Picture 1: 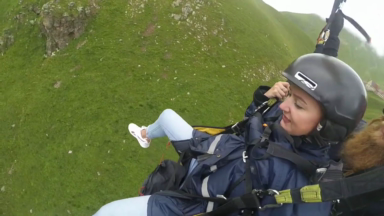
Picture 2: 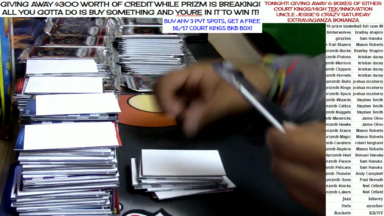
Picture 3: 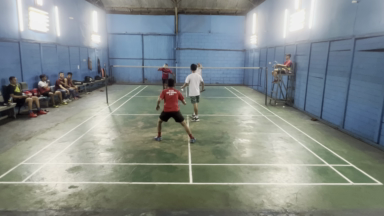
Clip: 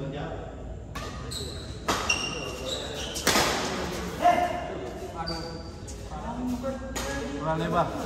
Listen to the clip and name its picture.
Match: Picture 3